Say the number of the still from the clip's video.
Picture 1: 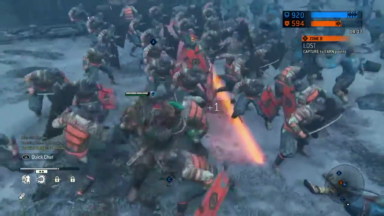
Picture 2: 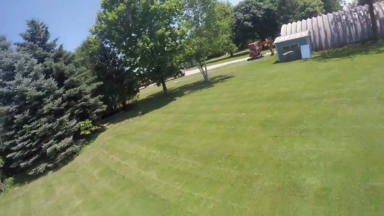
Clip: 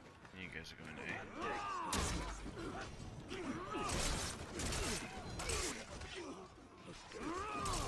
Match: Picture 1